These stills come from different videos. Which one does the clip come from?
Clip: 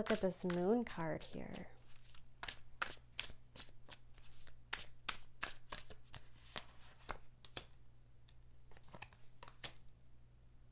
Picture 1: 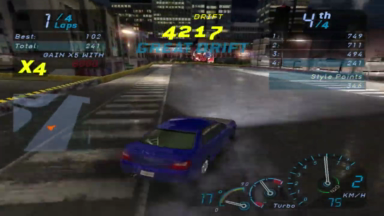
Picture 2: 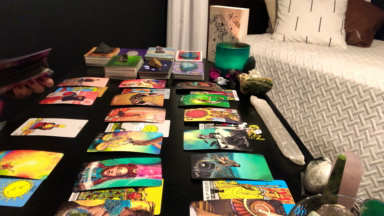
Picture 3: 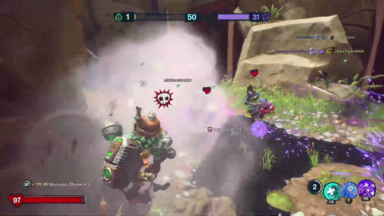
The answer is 2